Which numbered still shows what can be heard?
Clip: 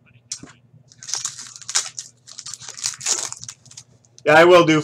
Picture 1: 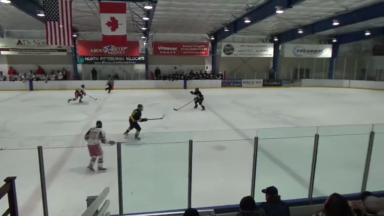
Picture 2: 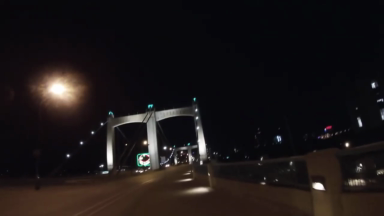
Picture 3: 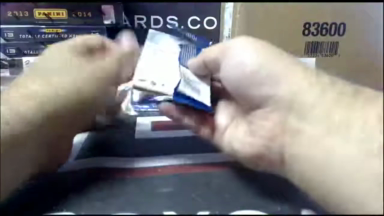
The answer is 3